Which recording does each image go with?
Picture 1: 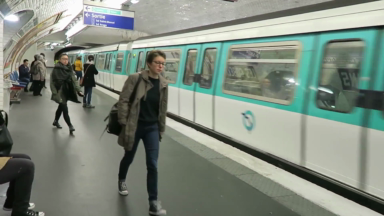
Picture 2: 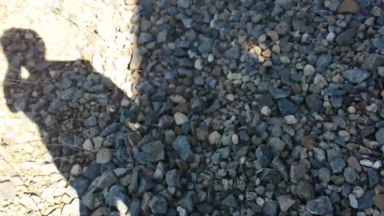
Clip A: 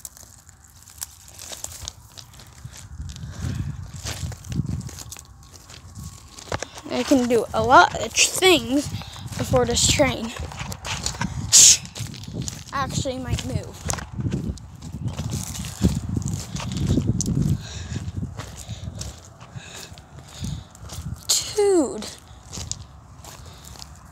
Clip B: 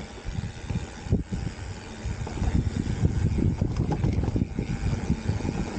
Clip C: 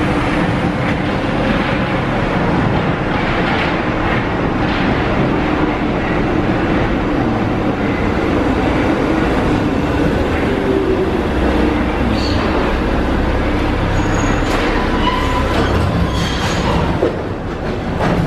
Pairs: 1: C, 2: A